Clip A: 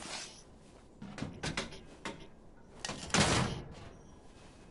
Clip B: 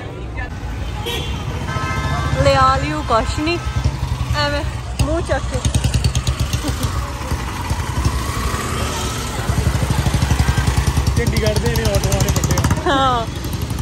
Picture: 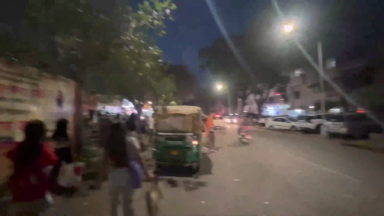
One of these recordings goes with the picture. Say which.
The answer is B